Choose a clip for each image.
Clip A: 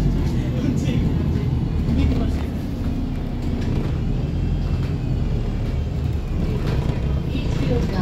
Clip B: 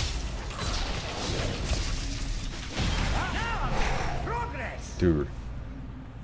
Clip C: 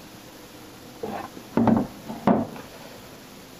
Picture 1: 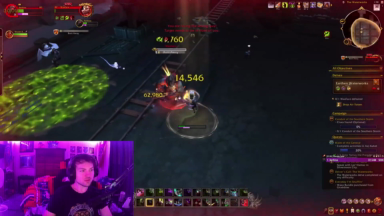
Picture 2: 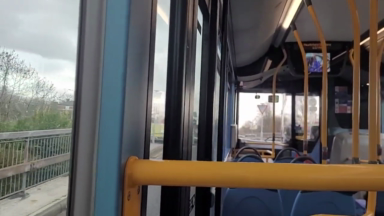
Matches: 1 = B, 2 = A